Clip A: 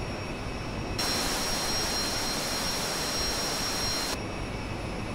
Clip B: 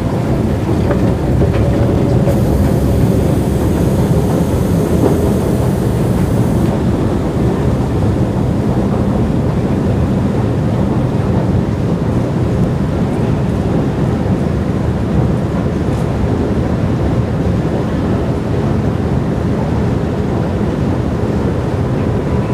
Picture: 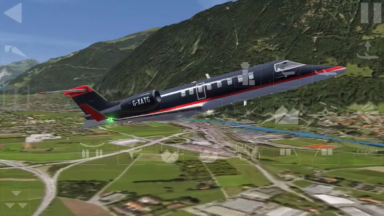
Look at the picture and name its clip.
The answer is A